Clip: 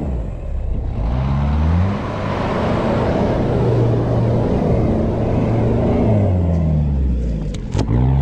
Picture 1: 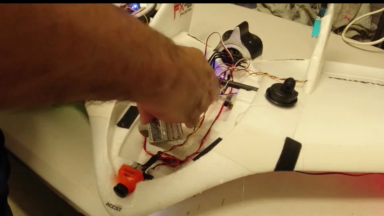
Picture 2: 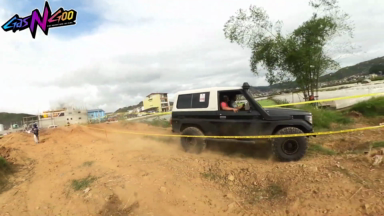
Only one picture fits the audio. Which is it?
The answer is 2